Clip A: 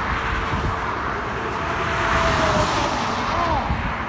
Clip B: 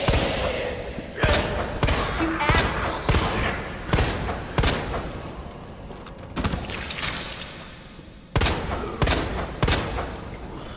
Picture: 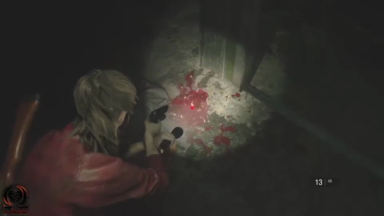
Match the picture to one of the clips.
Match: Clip B